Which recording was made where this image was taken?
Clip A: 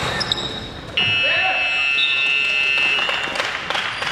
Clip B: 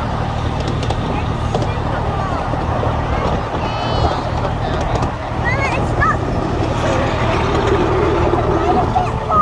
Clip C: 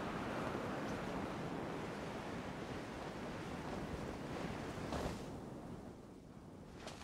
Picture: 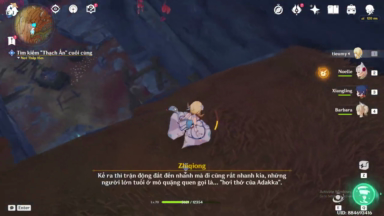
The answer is C